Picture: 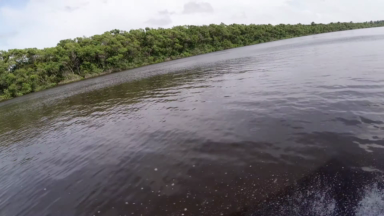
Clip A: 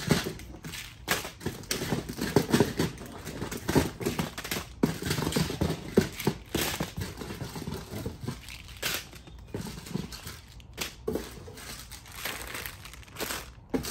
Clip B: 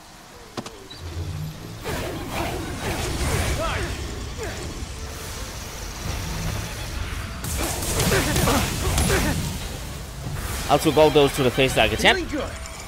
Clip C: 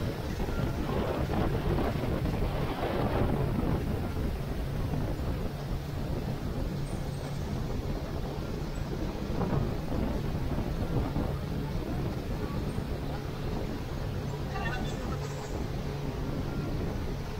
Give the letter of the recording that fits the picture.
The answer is C